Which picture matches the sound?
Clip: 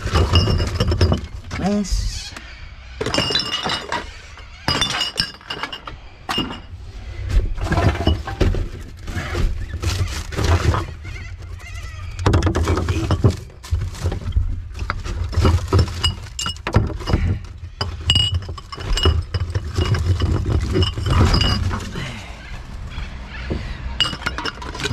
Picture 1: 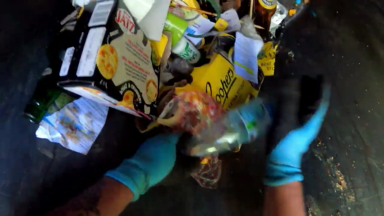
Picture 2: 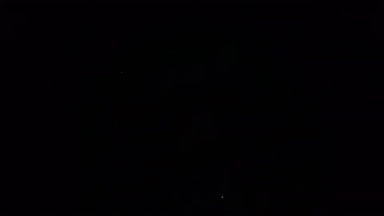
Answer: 1